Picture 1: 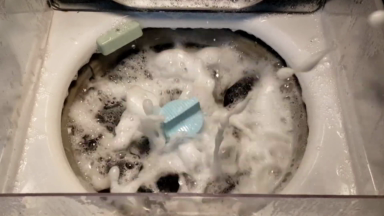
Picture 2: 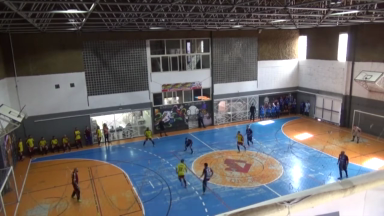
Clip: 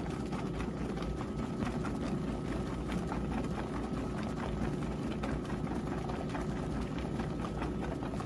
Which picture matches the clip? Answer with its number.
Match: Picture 1